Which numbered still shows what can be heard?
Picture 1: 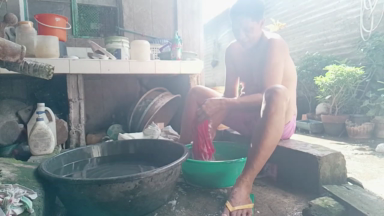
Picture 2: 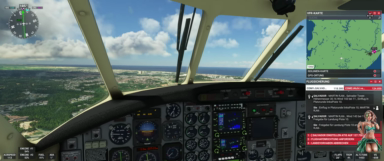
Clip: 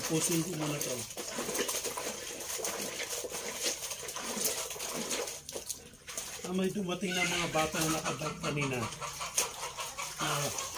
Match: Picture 1